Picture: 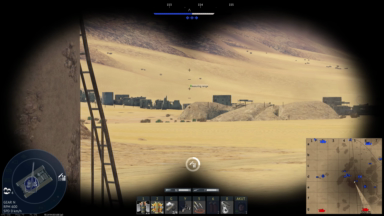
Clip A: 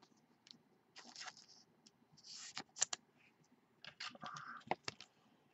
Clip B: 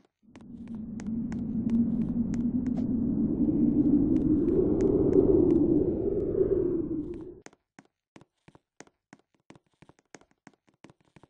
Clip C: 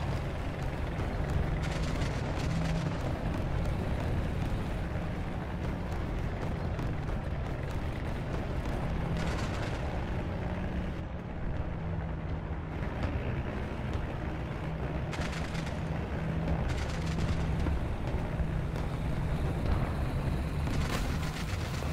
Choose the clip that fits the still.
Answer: C